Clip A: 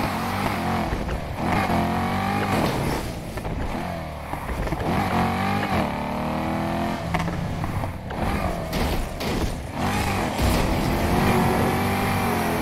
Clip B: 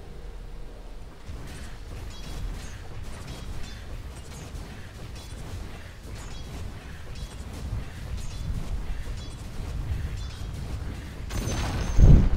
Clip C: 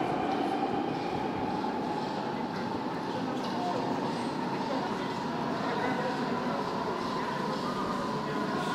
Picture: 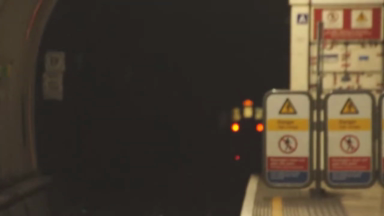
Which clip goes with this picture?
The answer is C